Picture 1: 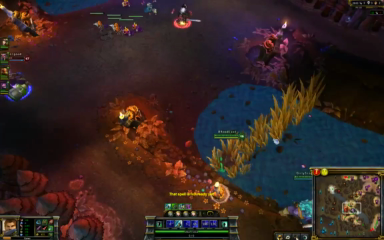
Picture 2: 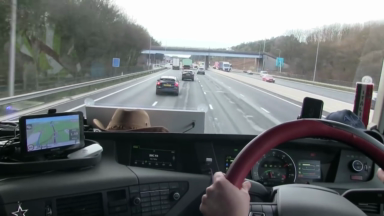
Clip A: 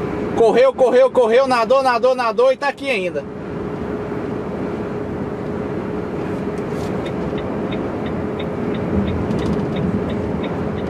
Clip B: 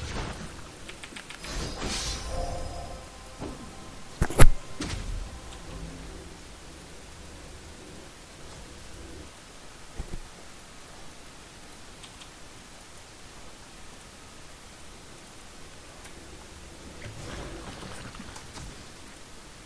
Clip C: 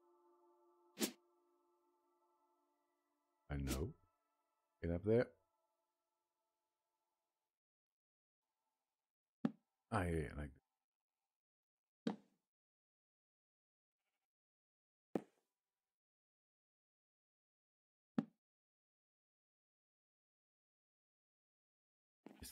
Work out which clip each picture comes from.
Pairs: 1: B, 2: A